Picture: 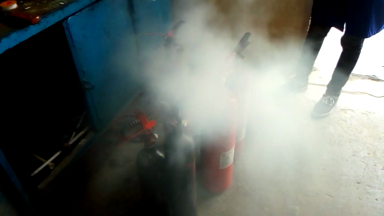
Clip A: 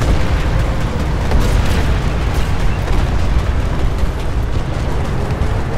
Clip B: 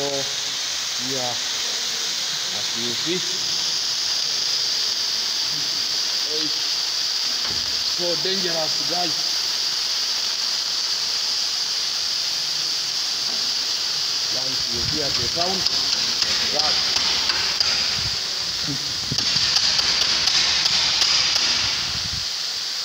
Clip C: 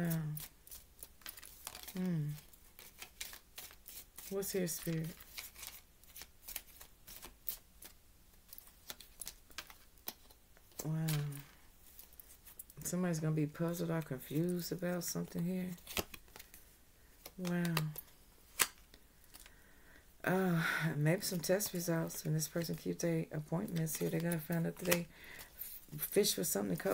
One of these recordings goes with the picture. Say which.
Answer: B